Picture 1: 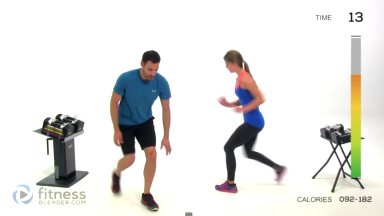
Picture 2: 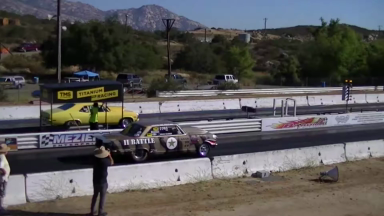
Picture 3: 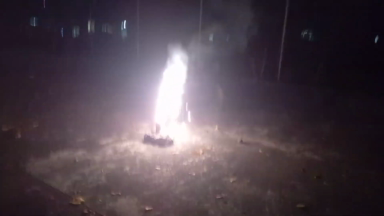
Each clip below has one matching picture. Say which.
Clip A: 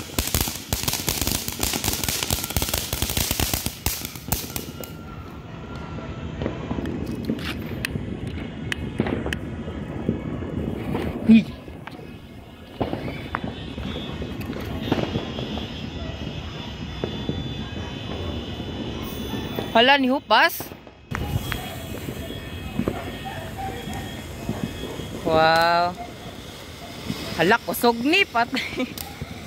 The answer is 3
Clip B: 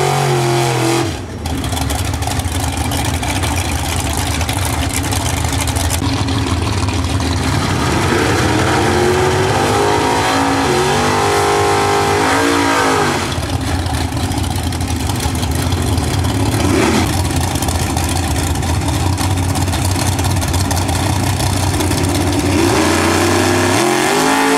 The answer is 2